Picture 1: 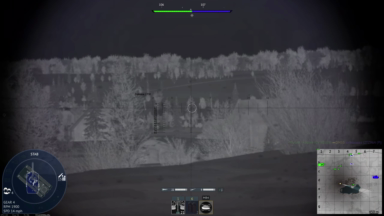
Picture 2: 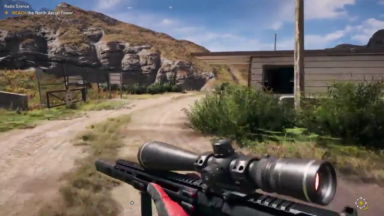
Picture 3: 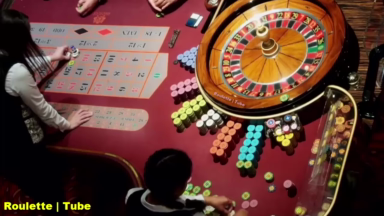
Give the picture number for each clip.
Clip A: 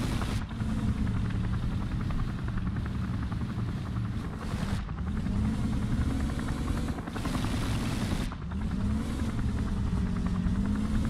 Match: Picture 1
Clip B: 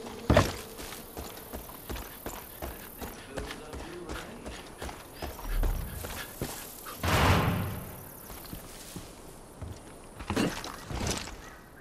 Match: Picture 2